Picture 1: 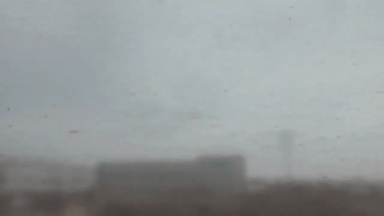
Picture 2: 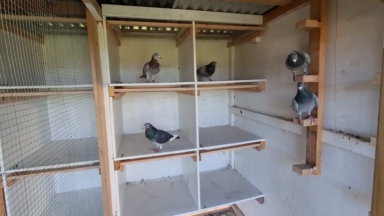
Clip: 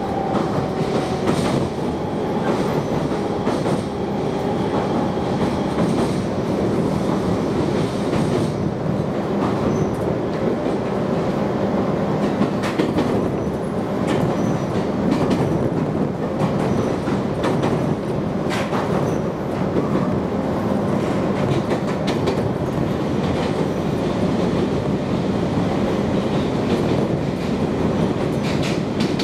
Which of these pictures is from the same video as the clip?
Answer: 1